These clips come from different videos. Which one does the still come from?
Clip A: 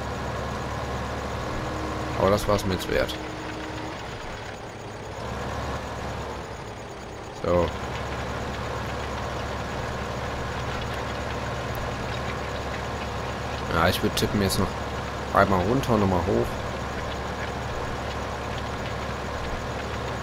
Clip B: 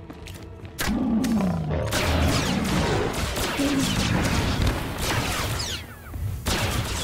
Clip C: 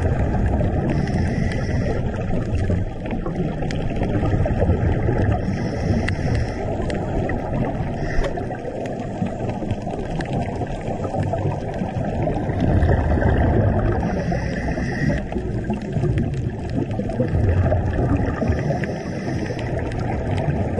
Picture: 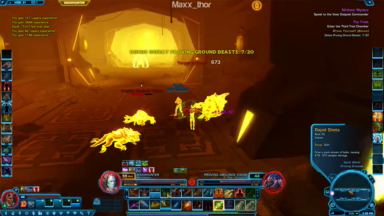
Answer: B